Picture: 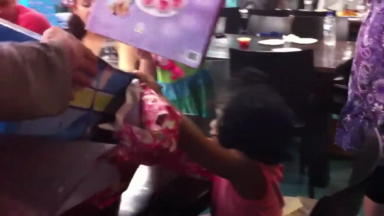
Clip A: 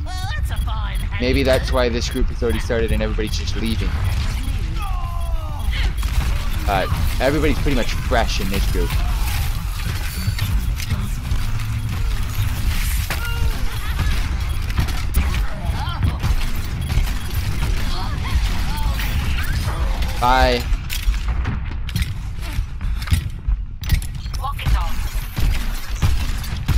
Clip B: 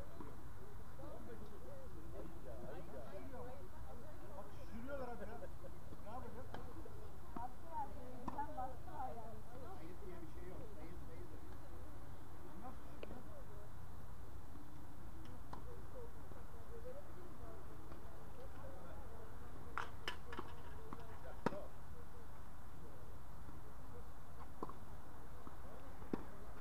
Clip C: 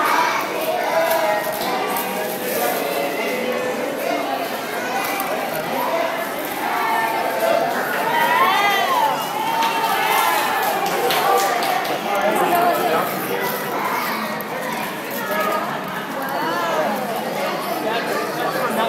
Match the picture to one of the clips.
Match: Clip C